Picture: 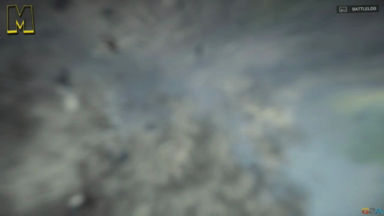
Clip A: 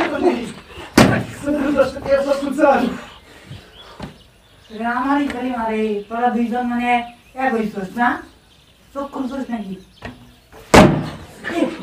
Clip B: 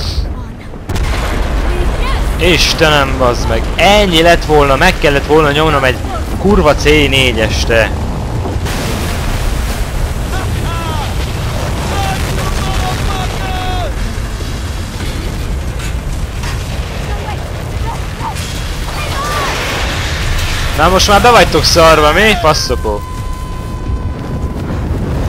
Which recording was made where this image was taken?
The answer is B